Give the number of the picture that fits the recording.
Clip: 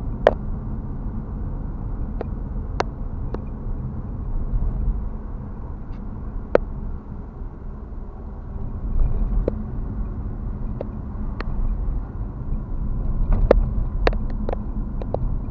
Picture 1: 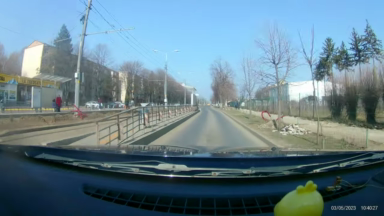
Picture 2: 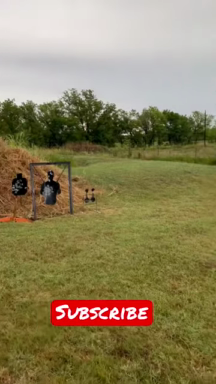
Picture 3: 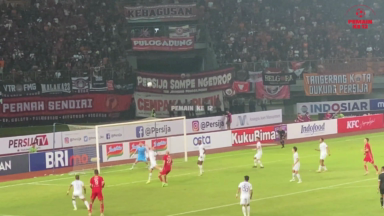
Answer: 1